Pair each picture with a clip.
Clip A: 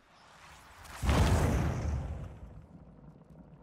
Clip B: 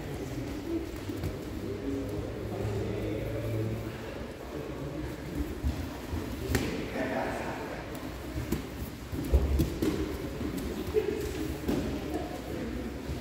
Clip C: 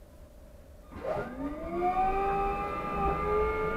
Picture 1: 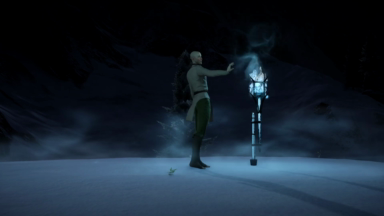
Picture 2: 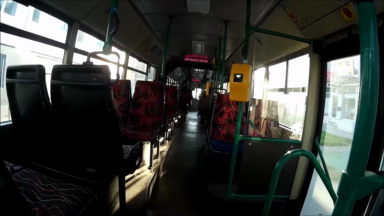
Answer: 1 A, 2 C